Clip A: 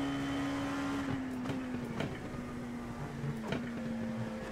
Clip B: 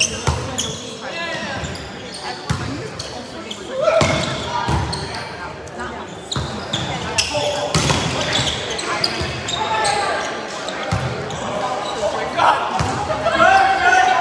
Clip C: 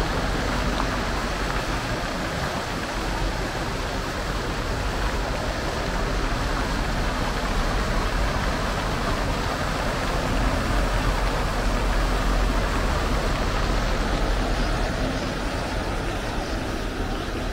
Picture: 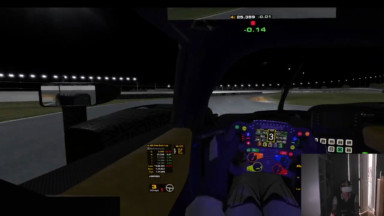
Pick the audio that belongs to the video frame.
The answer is A